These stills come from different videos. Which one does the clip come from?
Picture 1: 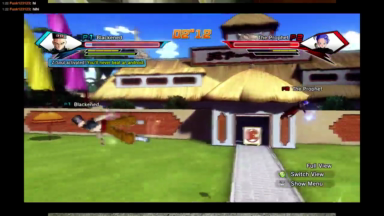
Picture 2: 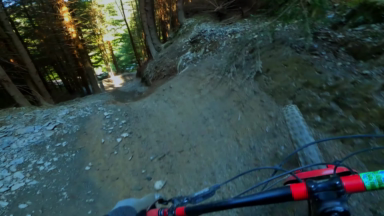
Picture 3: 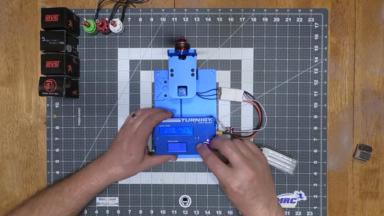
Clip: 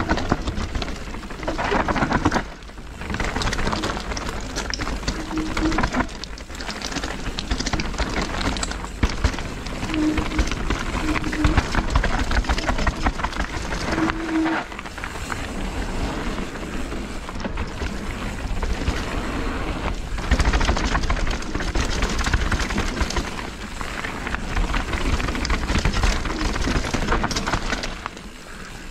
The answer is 2